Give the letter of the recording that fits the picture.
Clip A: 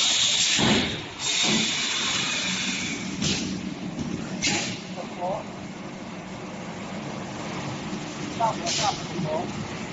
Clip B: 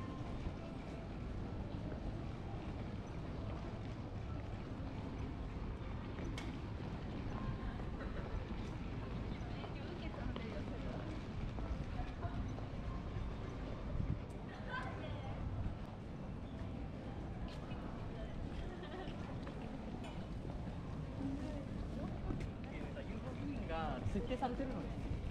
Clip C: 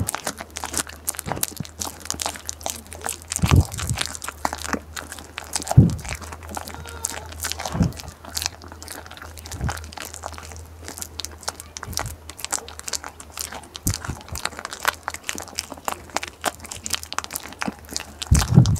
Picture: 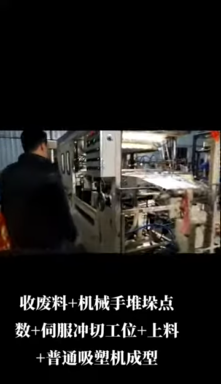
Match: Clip A